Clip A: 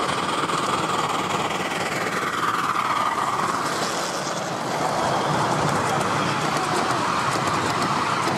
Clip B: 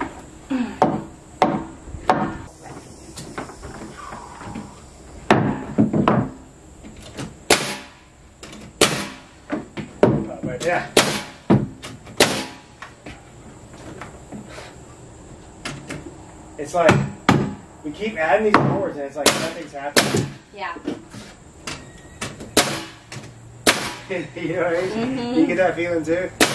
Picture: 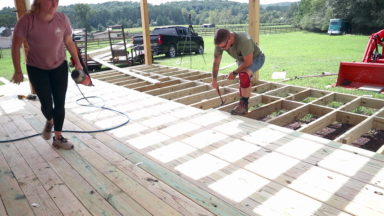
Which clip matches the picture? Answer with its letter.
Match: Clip B